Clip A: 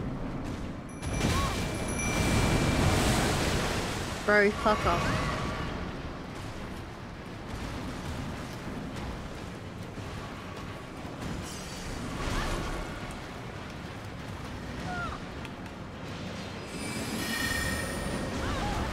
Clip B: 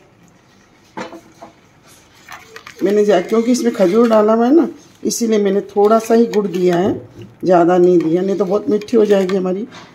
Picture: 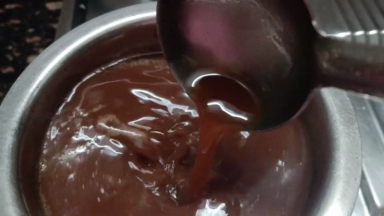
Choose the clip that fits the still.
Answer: B